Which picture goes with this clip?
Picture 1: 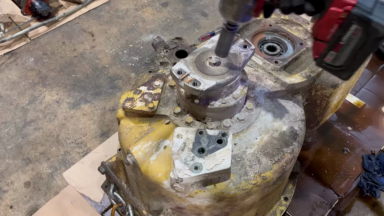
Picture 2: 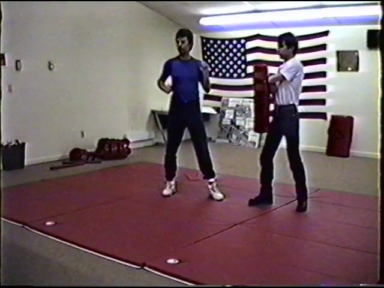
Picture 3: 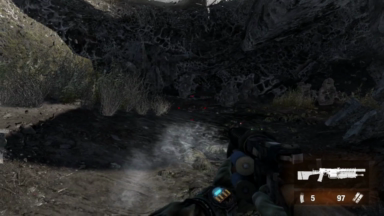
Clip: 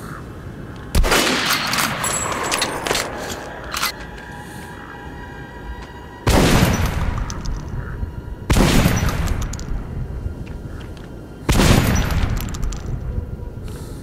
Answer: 3